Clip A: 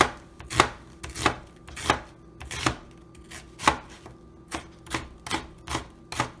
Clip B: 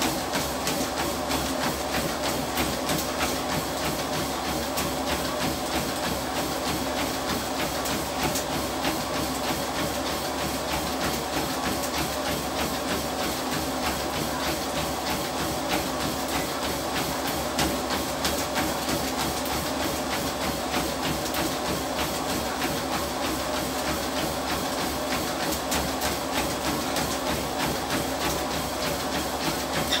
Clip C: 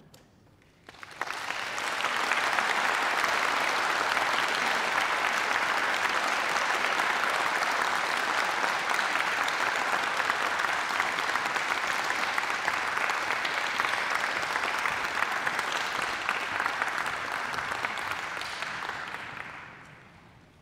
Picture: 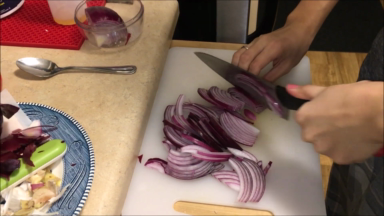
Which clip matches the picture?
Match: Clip A